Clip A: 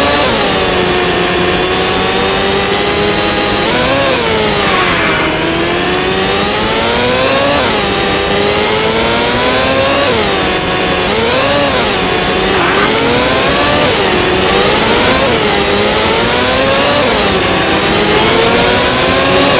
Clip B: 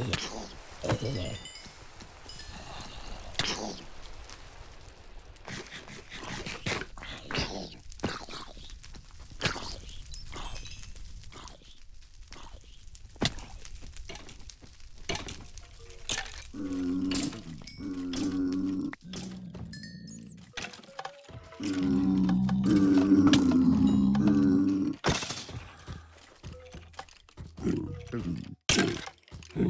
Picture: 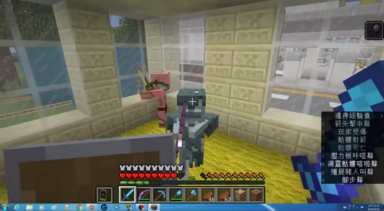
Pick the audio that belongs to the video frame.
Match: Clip B